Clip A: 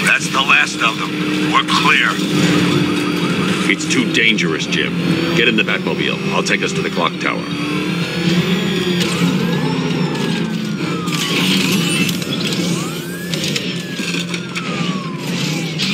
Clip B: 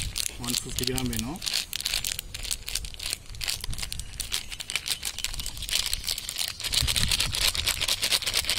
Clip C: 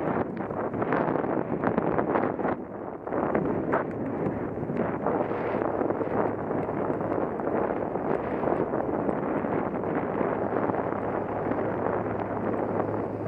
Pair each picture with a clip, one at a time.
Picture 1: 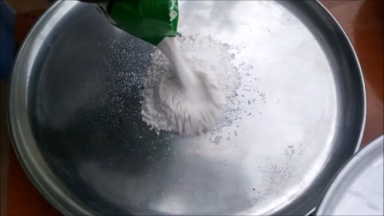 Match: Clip B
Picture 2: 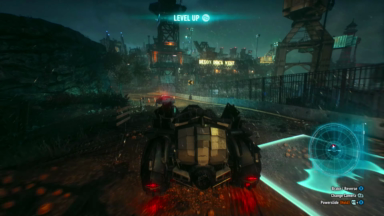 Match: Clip A